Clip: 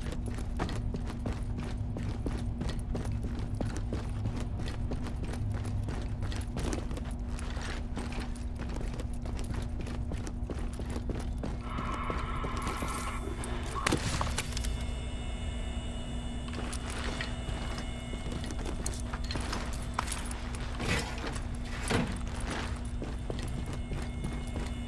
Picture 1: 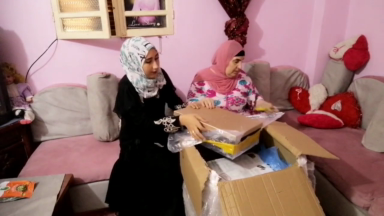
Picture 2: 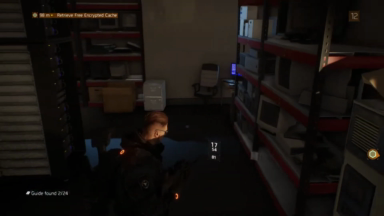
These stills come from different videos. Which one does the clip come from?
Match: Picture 2